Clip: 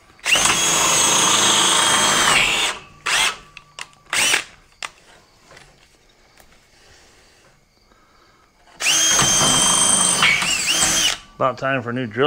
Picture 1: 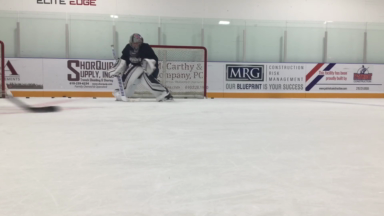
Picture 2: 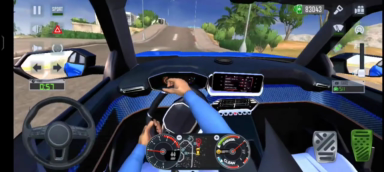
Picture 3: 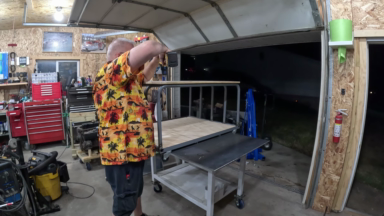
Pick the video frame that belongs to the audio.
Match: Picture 3